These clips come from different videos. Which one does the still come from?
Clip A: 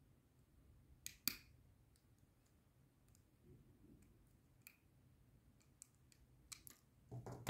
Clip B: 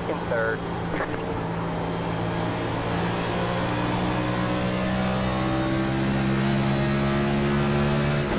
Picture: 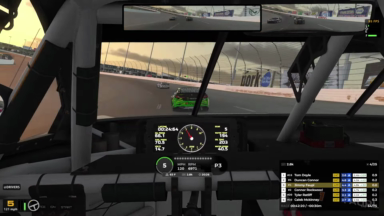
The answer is B